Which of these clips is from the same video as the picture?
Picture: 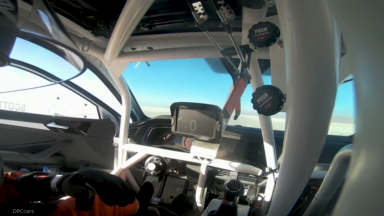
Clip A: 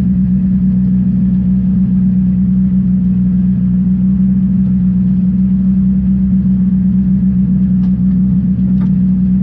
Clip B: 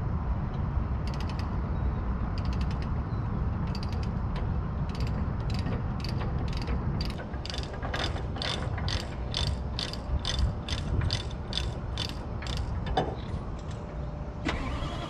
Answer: A